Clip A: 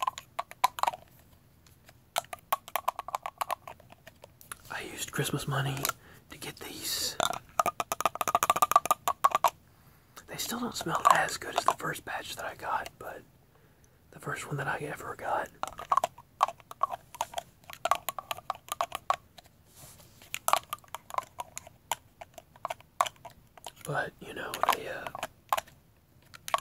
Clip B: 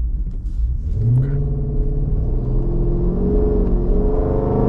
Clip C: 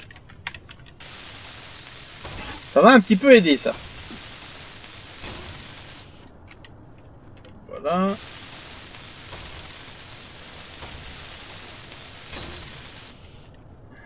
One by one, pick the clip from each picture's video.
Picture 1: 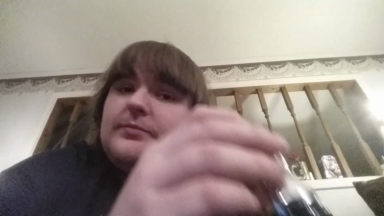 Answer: A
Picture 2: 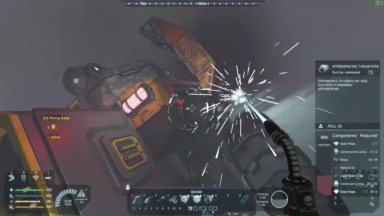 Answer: C